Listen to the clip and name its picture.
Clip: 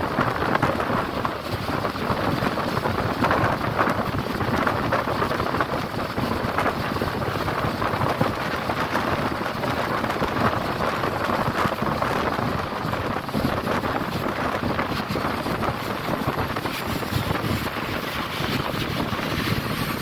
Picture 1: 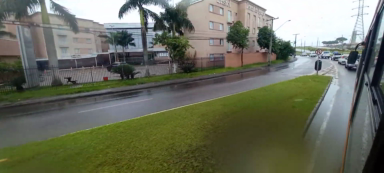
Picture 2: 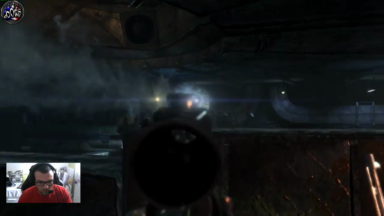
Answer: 1